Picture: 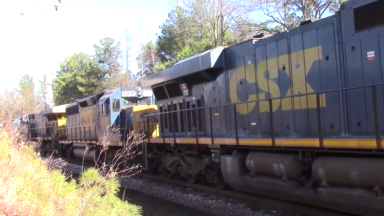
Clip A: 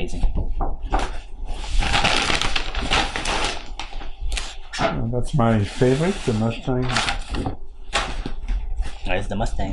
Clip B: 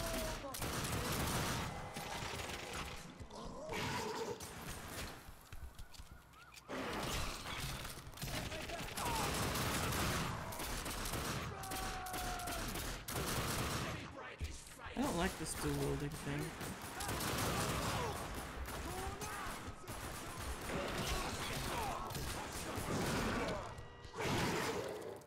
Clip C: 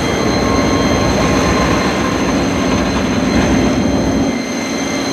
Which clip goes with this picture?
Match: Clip C